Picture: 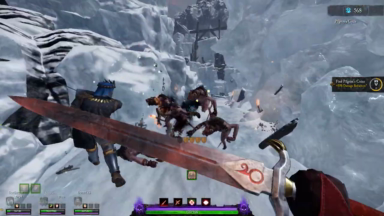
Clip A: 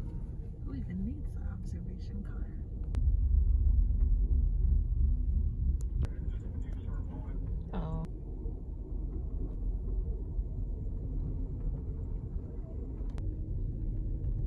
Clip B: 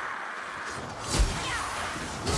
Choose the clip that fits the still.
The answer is B